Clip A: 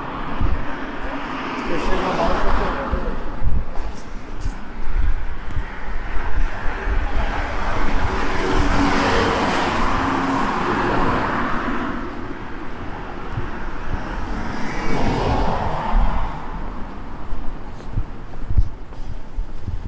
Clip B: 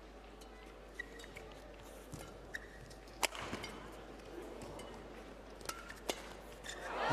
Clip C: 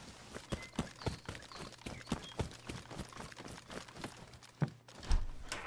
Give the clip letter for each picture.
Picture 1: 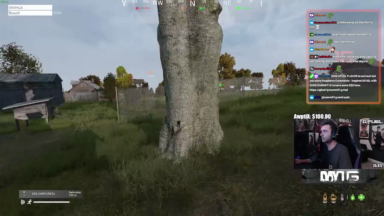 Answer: C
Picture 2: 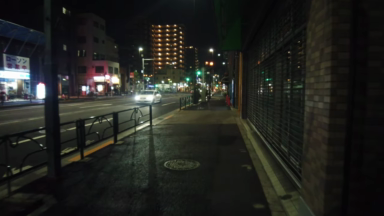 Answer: A